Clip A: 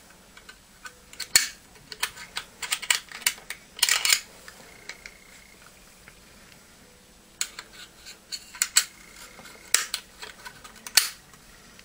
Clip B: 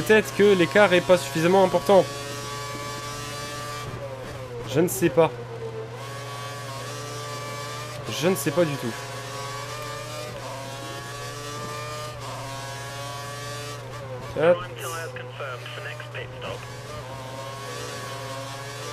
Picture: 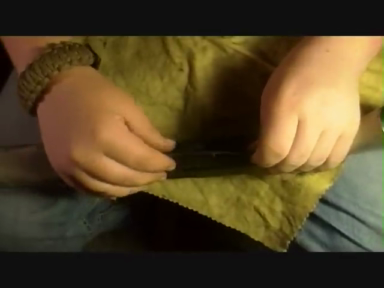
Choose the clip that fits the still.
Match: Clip A